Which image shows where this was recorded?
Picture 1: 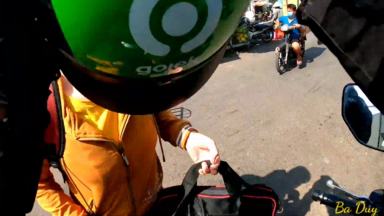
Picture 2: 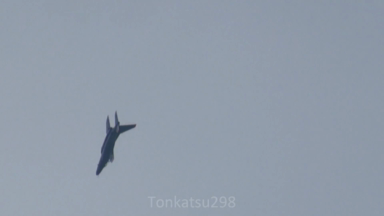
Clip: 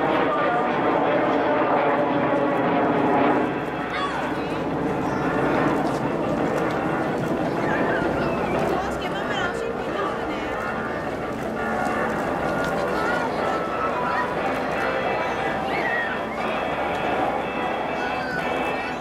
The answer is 2